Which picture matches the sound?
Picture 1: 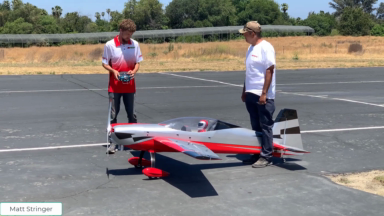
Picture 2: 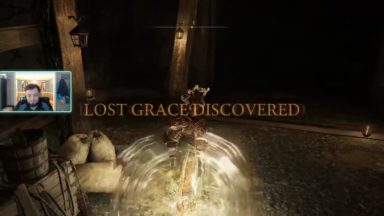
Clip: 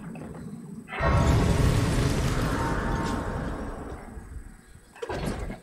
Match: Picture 2